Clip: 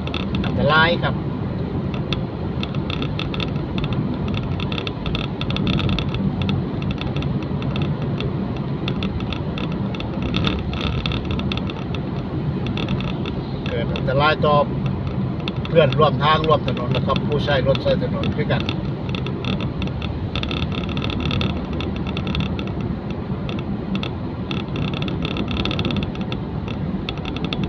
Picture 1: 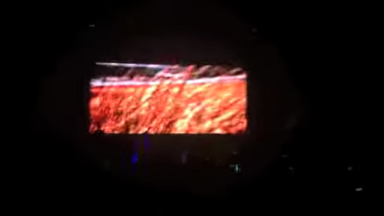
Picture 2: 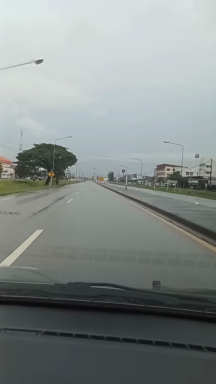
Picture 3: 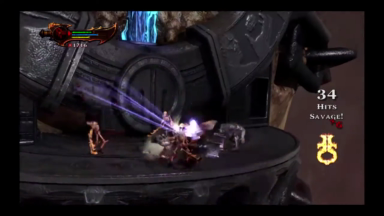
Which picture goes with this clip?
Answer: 2